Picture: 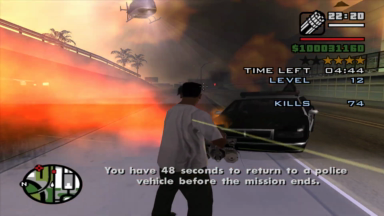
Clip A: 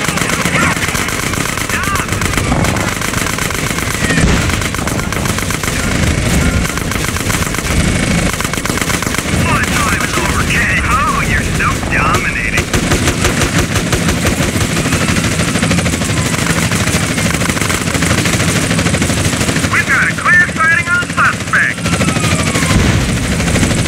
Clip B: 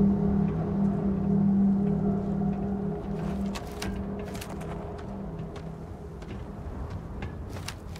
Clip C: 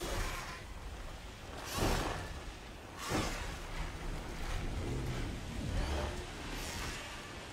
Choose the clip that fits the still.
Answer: A